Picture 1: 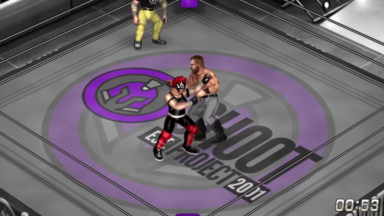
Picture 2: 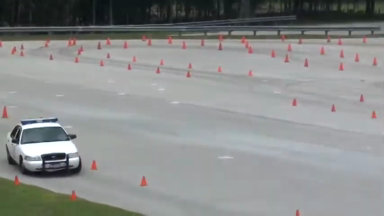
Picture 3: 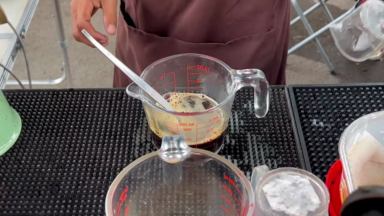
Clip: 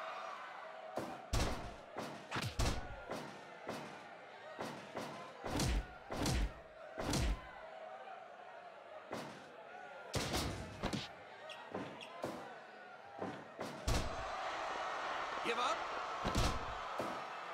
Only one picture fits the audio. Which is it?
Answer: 1